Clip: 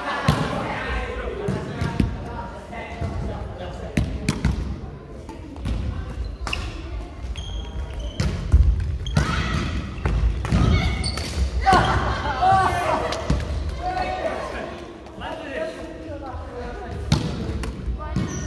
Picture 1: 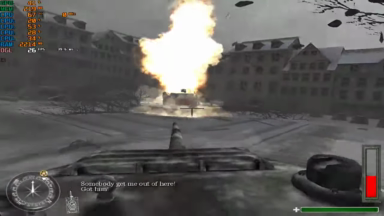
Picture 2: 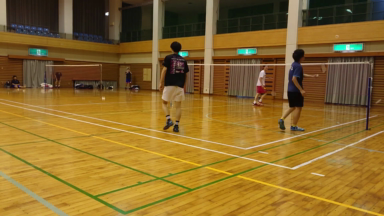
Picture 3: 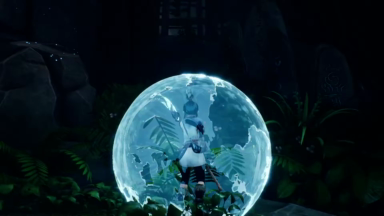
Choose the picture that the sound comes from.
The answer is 2